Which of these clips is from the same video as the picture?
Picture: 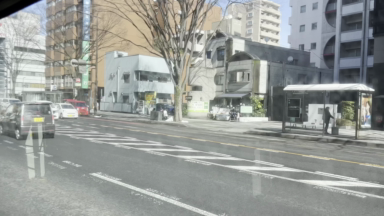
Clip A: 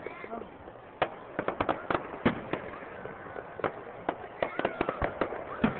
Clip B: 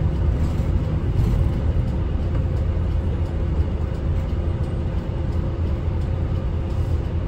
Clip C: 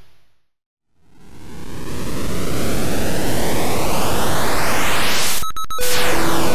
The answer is B